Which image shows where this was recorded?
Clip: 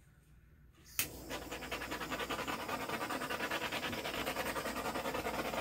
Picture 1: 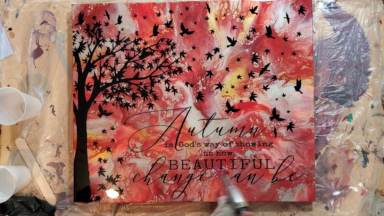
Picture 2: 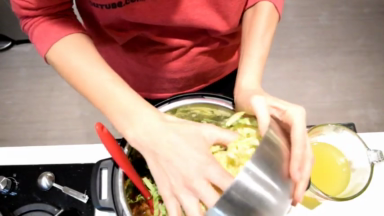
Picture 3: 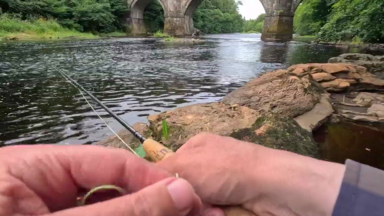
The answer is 1